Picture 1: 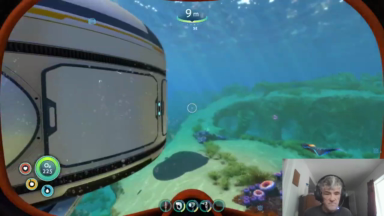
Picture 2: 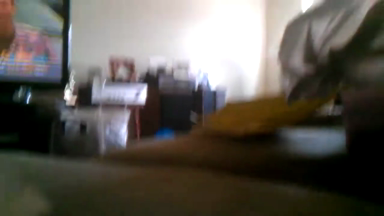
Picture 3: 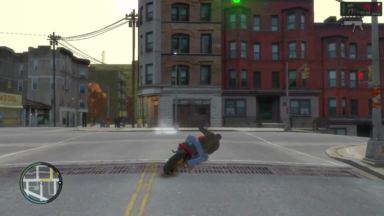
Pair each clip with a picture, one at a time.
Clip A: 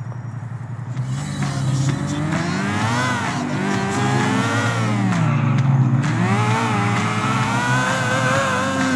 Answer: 3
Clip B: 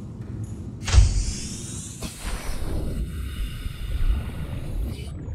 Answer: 1